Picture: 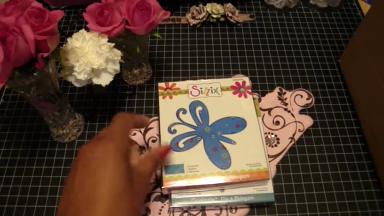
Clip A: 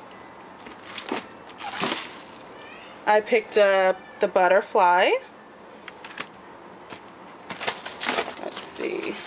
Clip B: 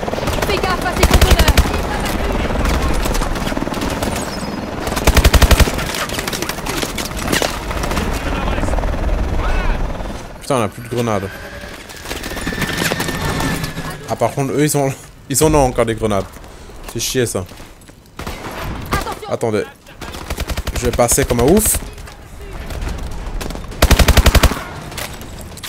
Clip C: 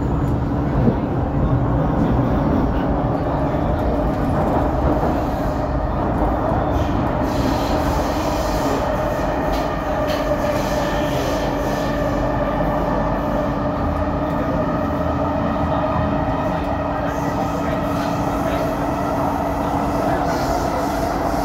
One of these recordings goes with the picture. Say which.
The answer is A